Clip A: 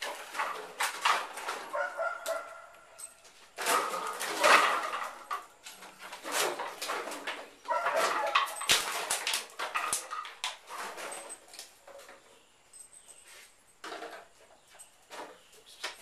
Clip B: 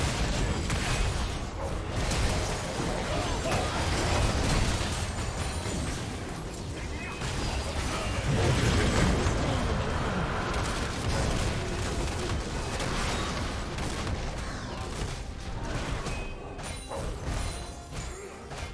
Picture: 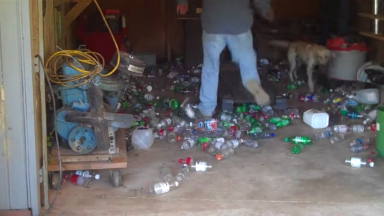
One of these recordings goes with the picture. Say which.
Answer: A